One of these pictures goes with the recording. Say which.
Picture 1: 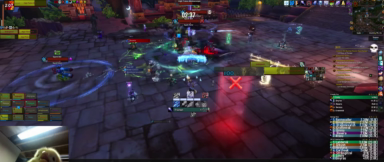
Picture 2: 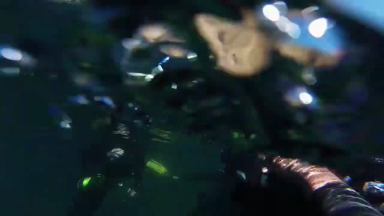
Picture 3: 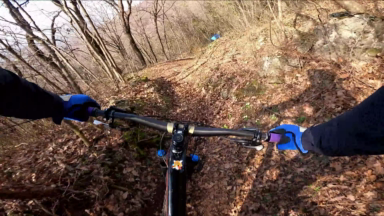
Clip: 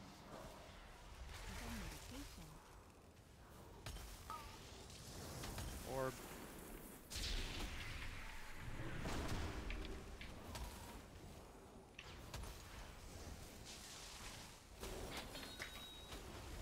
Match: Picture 1